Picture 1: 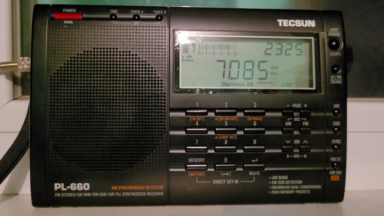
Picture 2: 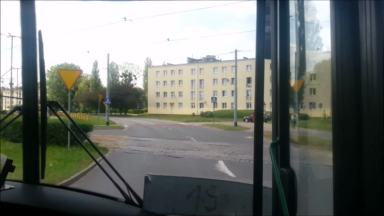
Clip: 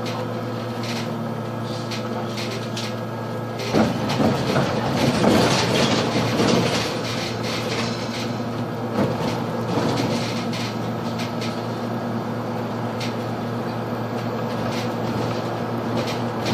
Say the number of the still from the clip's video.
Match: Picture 2